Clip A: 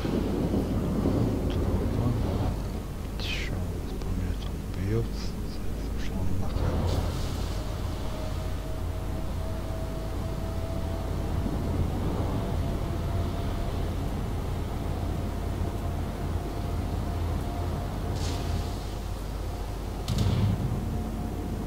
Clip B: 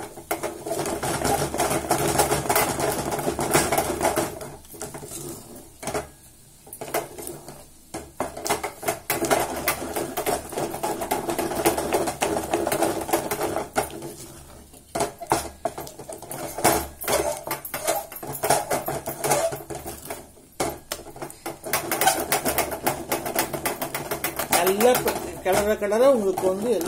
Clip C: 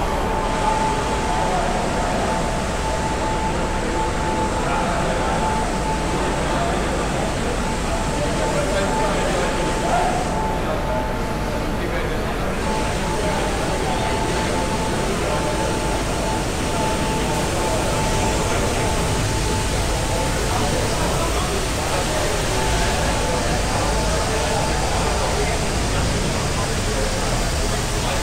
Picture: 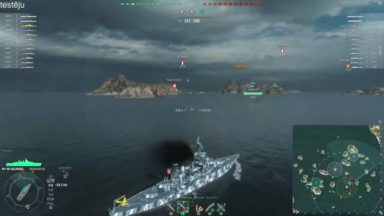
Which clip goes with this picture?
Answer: A